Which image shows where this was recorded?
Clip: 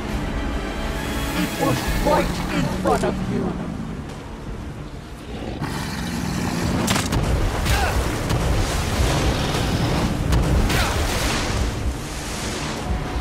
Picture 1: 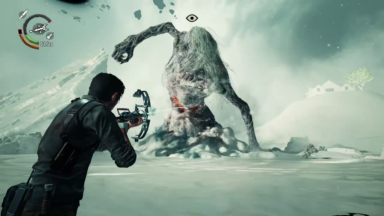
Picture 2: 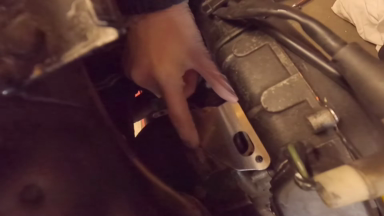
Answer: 1